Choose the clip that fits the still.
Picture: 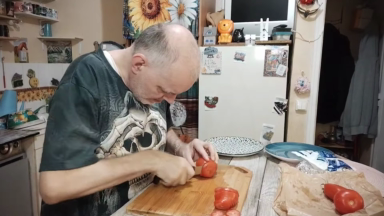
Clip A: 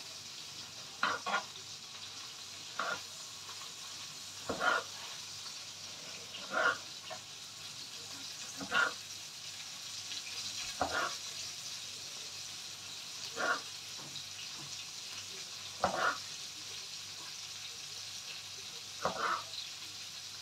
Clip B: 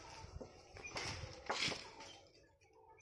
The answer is A